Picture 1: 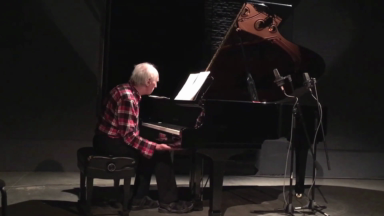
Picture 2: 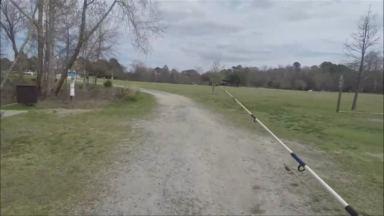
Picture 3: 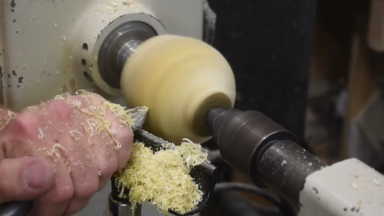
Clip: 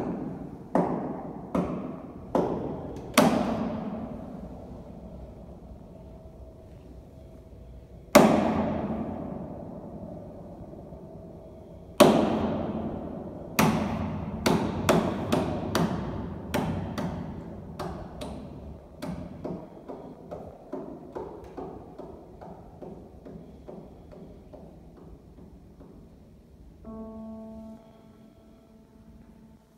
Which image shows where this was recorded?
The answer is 1